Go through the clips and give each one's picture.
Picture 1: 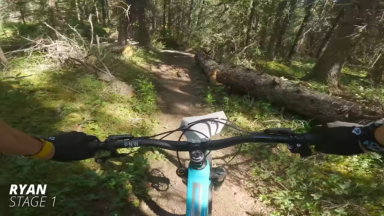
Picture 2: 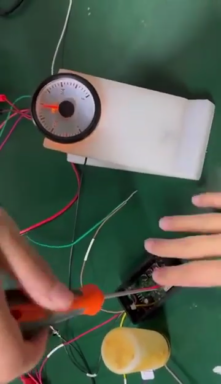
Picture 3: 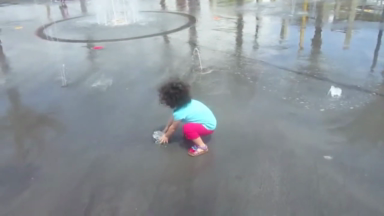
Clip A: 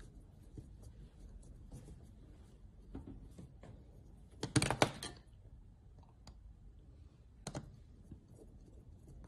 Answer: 2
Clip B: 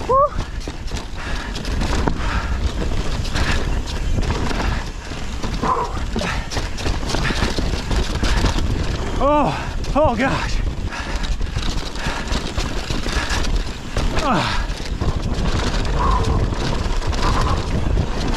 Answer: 1